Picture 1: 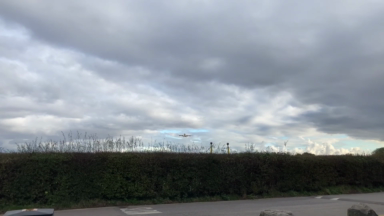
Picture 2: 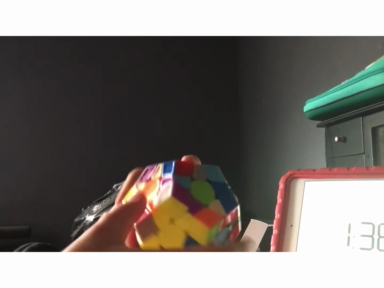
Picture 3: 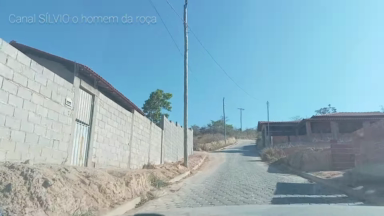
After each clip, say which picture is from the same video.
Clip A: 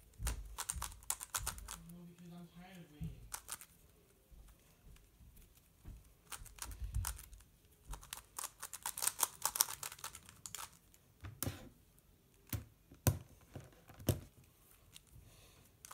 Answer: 2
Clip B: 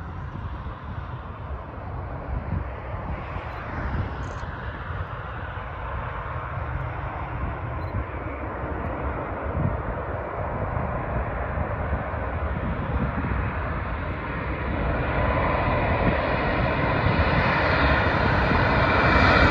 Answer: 1